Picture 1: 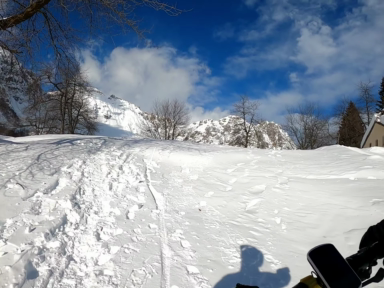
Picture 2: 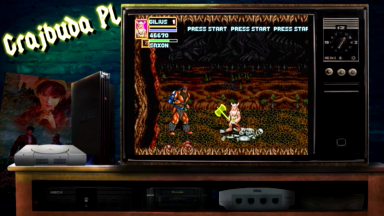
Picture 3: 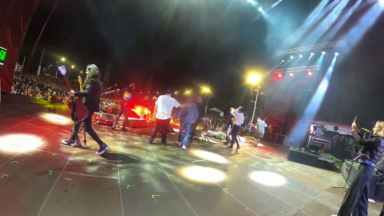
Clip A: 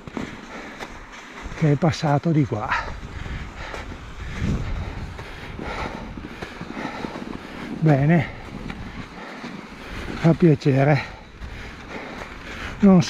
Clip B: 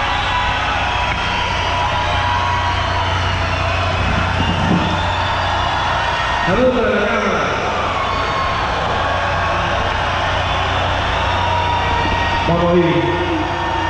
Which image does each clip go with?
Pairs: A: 1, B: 3